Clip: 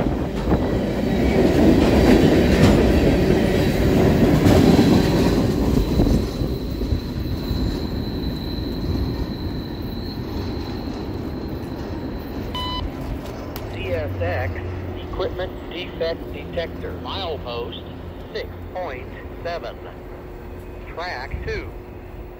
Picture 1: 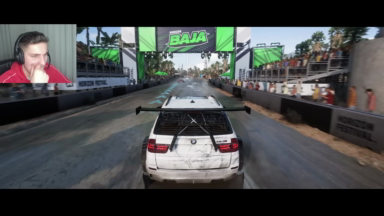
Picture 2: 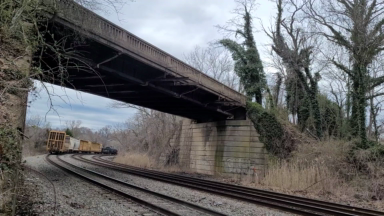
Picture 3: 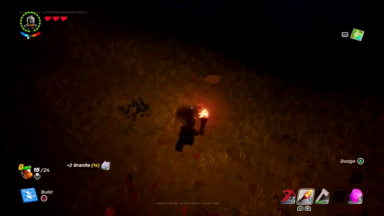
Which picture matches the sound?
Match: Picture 2